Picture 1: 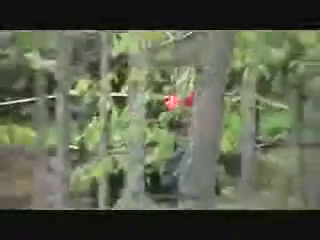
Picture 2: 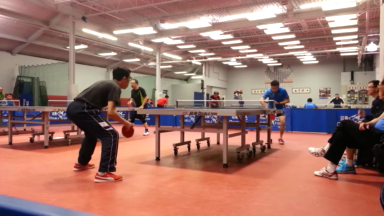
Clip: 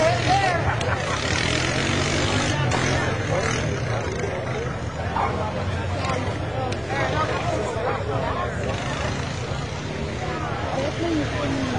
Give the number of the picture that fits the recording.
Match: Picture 1